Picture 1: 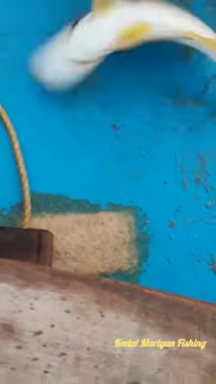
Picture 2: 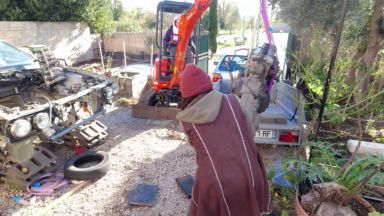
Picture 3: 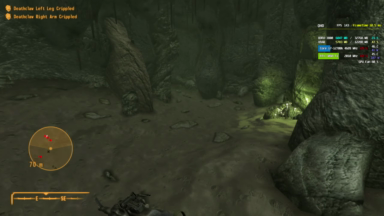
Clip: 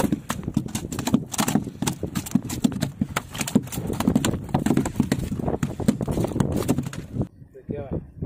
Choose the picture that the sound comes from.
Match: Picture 1